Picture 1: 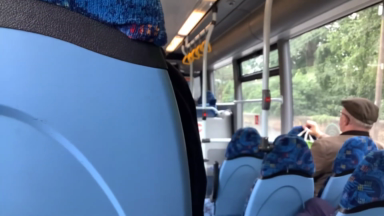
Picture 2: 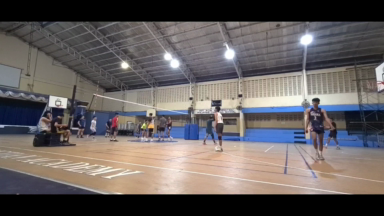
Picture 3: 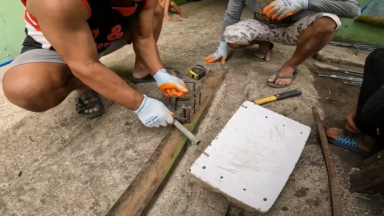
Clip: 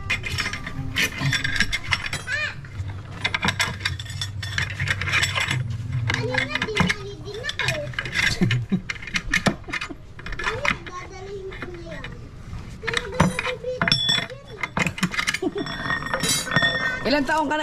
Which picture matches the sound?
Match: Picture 3